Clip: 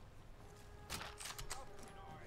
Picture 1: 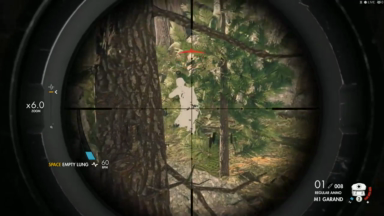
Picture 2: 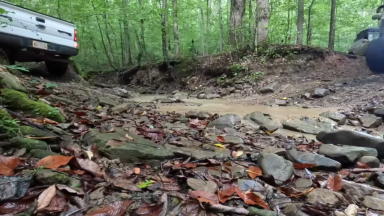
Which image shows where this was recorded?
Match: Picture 1